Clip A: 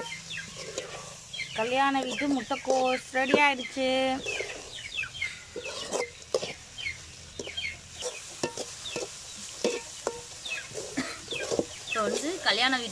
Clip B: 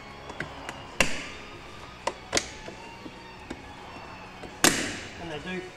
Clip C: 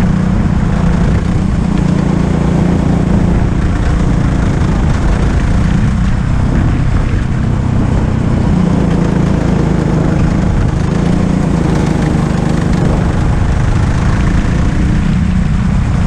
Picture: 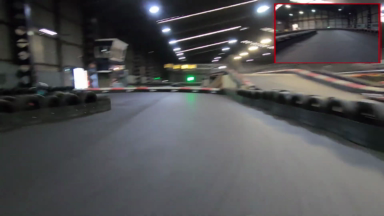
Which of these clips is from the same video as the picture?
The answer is C